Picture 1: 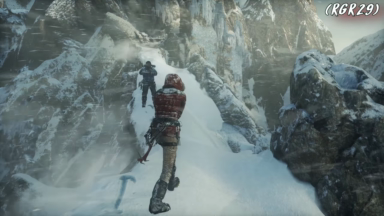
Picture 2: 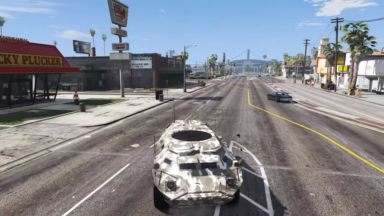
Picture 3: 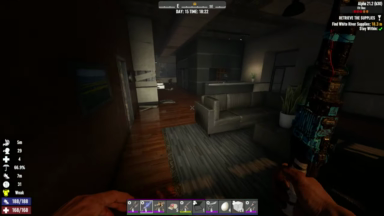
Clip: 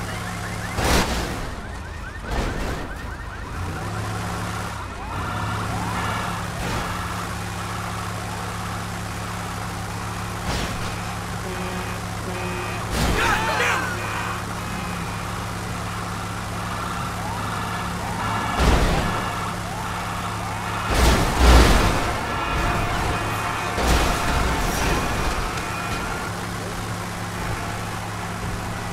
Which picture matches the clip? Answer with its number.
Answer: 2